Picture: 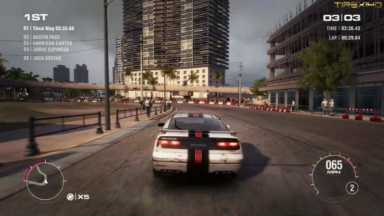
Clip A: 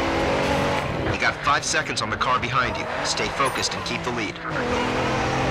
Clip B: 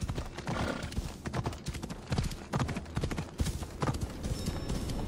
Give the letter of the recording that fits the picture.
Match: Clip A